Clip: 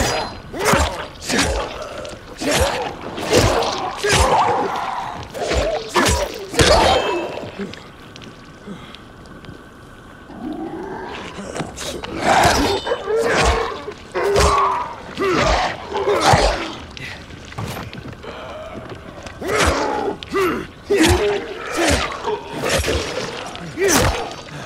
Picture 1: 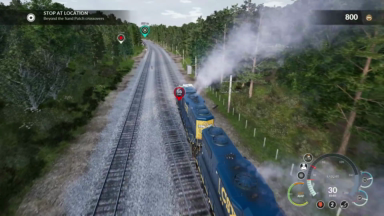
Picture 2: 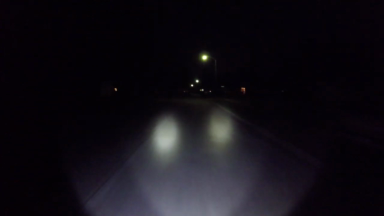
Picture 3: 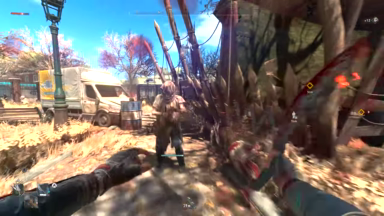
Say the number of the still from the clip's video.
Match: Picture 3